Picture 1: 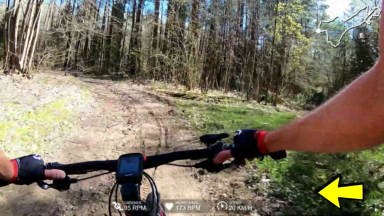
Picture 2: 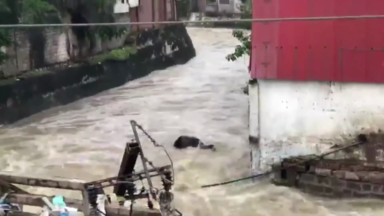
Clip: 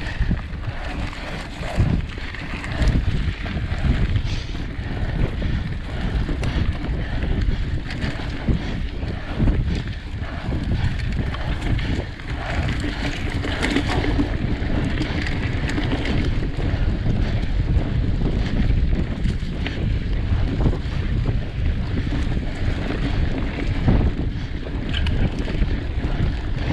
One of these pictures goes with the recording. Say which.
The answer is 1